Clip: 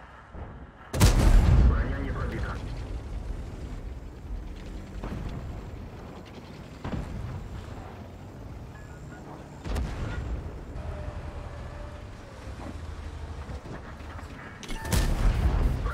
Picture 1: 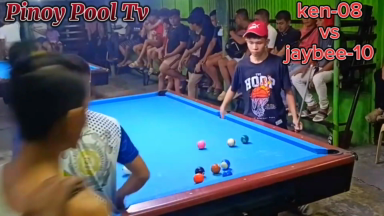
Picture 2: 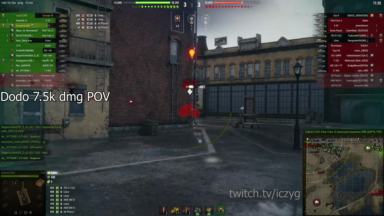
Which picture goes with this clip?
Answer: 2